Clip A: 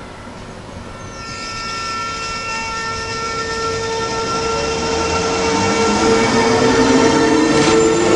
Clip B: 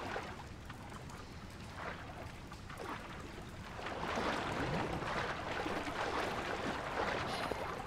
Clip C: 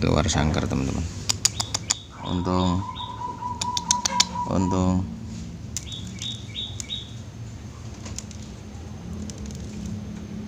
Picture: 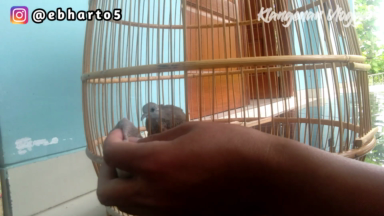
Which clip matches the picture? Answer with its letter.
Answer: C